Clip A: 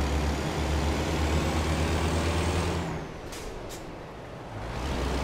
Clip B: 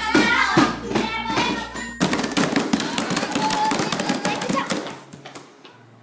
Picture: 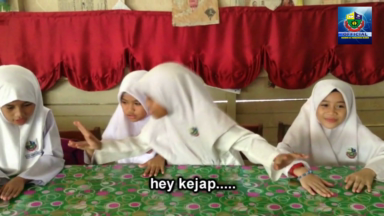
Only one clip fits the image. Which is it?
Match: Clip B